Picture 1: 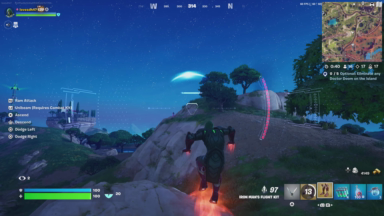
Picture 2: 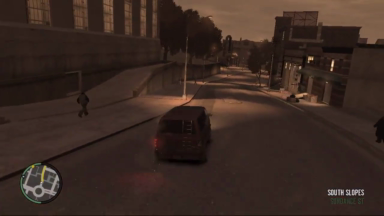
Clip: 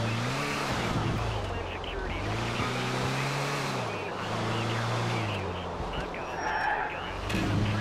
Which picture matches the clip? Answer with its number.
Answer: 2